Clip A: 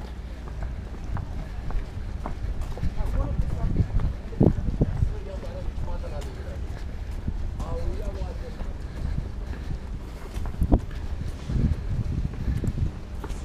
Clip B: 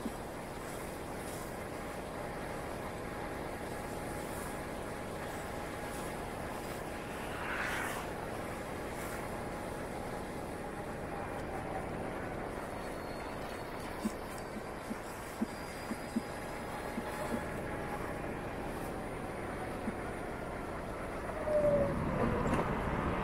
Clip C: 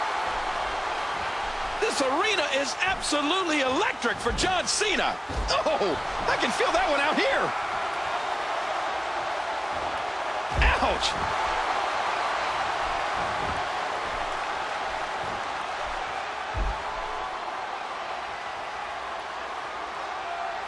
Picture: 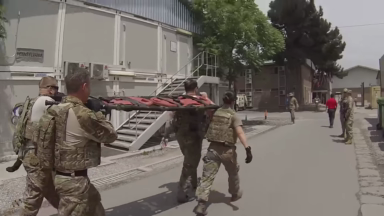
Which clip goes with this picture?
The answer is A